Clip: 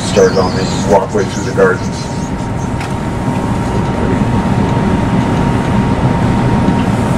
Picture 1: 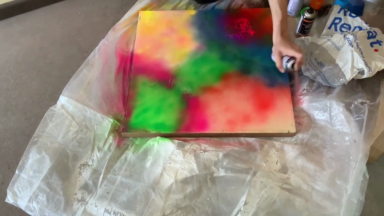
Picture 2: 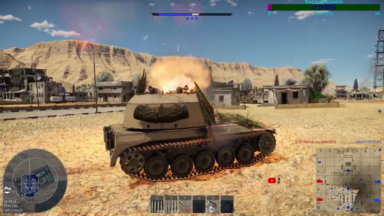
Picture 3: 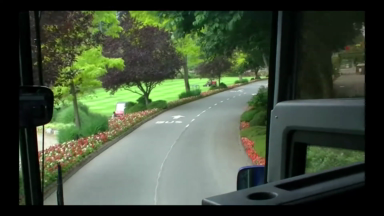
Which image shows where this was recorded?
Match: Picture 3